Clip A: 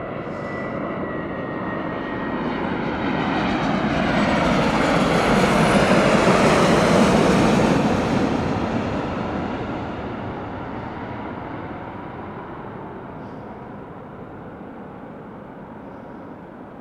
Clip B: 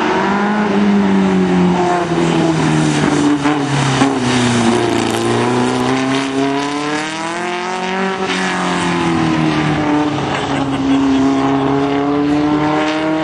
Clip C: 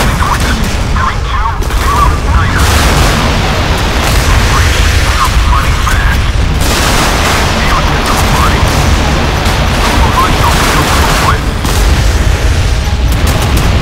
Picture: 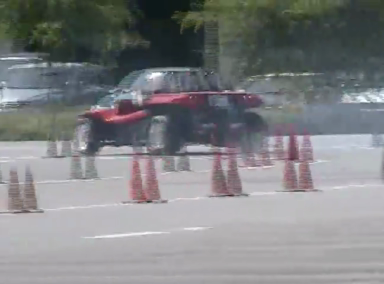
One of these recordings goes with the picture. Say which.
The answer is B